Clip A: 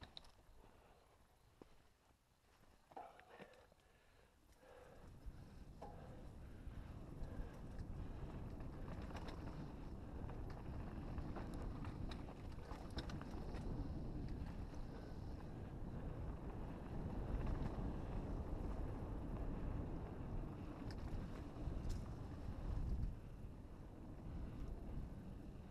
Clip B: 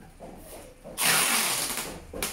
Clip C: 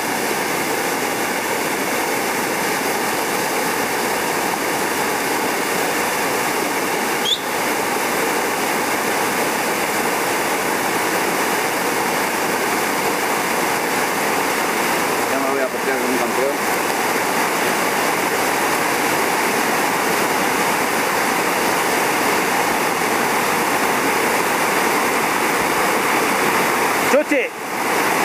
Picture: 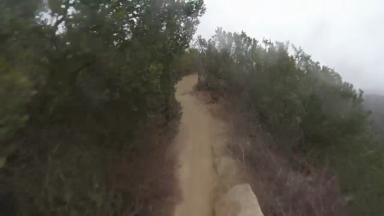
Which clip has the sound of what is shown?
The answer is A